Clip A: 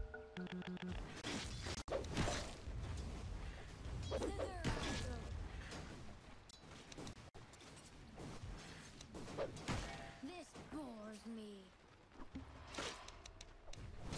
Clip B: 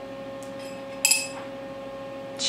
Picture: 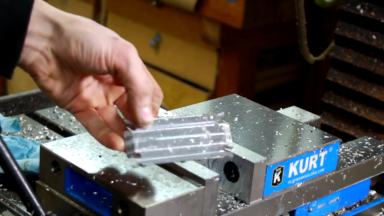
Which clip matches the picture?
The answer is B